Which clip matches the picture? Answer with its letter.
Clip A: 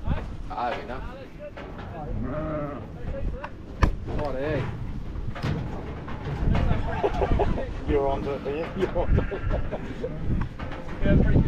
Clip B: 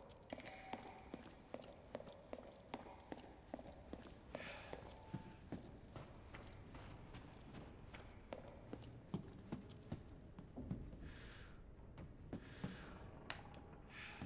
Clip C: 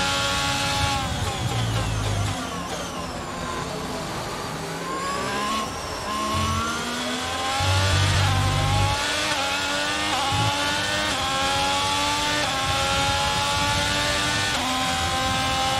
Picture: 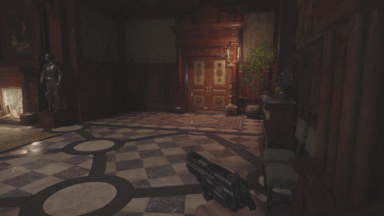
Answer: B